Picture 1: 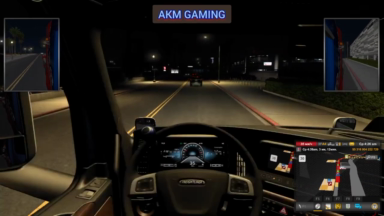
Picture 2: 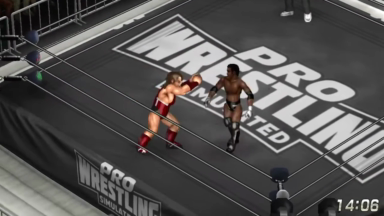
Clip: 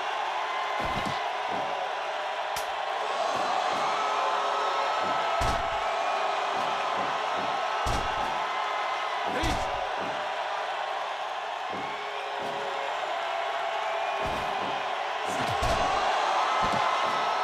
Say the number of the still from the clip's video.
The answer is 2